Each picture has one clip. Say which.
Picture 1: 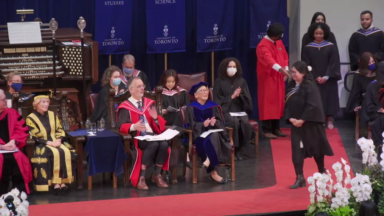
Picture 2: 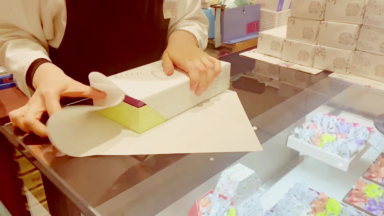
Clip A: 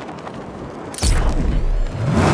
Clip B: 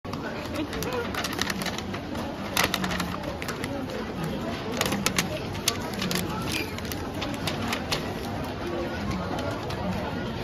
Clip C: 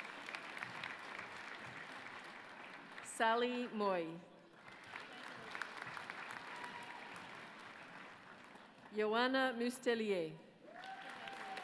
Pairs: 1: C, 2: B